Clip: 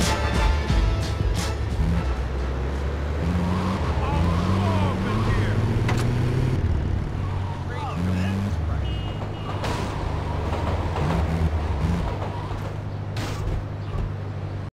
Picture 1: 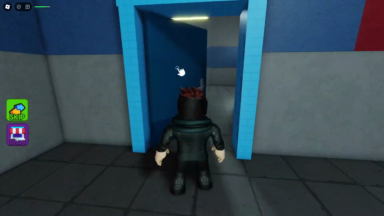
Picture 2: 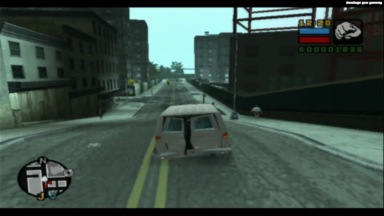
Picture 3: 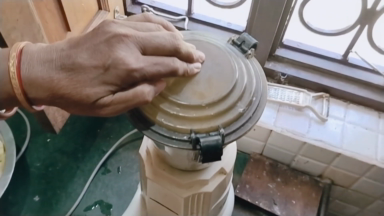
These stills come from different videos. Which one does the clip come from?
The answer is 2